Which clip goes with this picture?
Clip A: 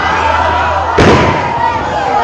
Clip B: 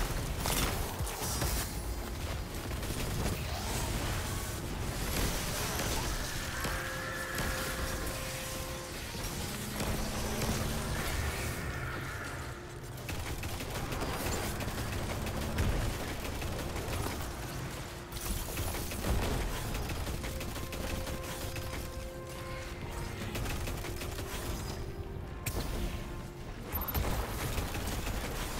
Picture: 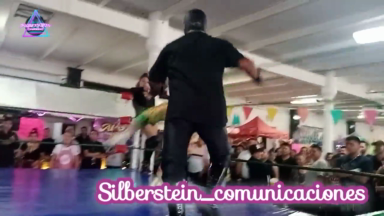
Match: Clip A